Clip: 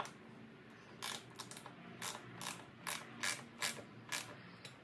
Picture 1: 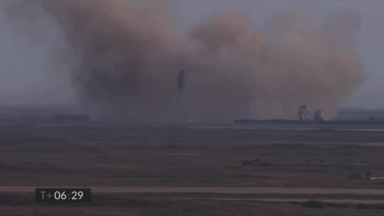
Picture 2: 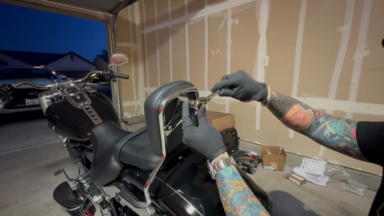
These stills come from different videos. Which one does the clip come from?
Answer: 2